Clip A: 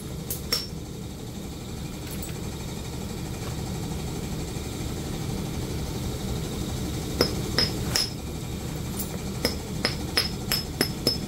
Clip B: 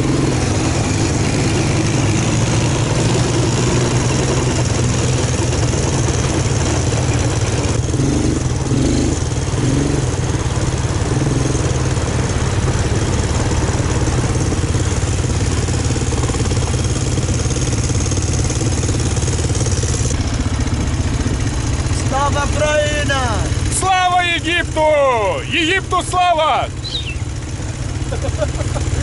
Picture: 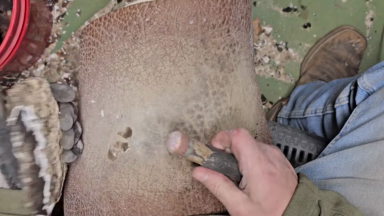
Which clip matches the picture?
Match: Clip A